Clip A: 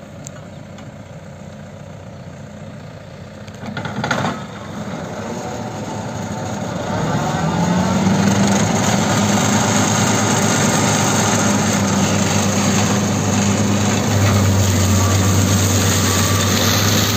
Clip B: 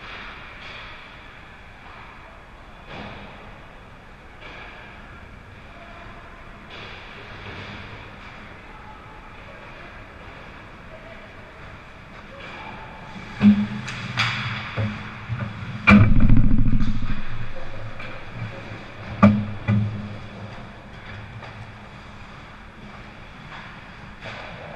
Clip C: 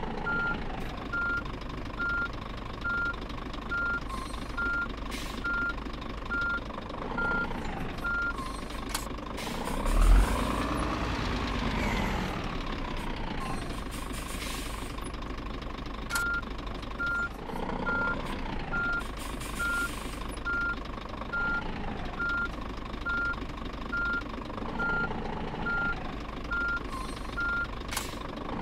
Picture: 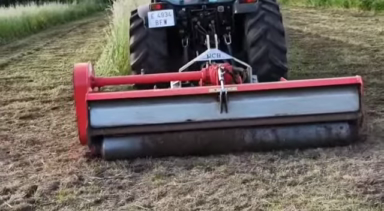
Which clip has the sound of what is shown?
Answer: A